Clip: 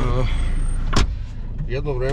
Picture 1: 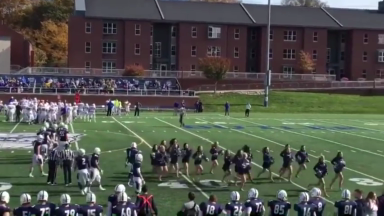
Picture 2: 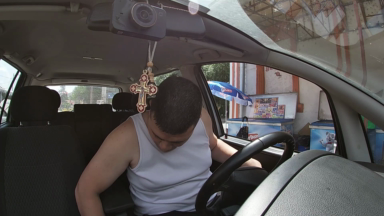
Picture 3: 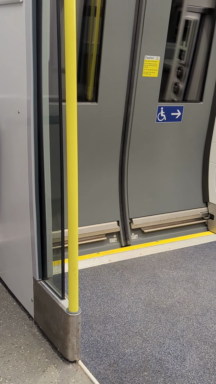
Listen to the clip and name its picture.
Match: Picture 2